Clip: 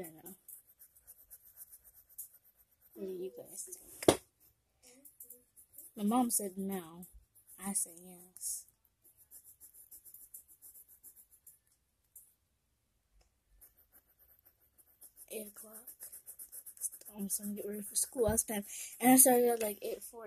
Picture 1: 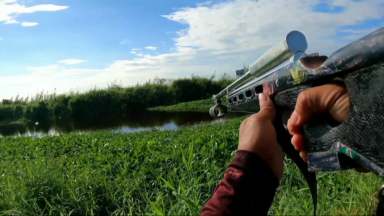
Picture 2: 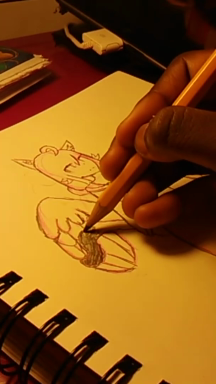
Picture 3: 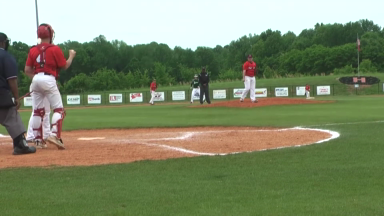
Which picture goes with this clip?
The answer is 2